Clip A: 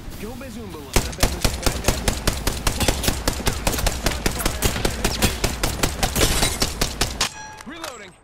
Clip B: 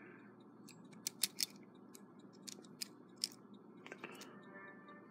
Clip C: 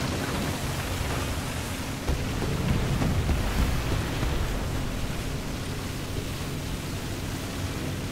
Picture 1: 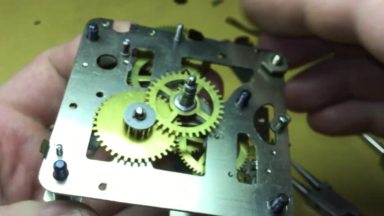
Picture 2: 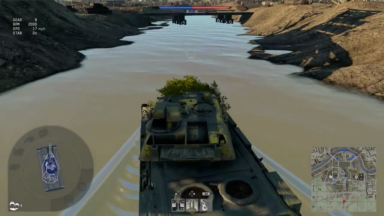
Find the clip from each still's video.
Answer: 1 B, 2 C